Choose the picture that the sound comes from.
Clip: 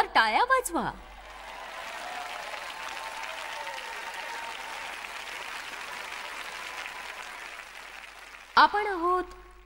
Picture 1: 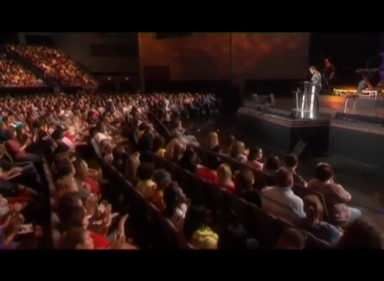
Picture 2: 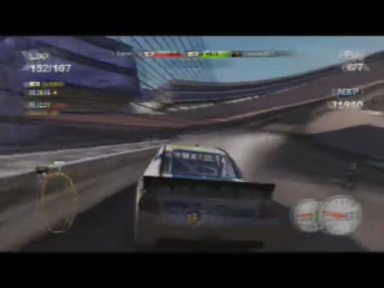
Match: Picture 1